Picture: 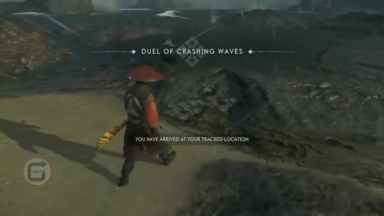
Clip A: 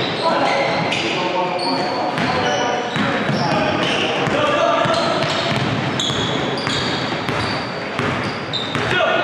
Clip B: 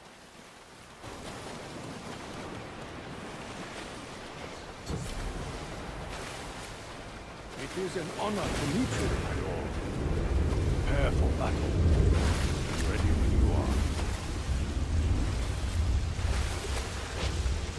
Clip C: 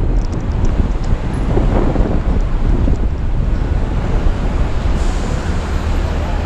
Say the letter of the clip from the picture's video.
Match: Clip B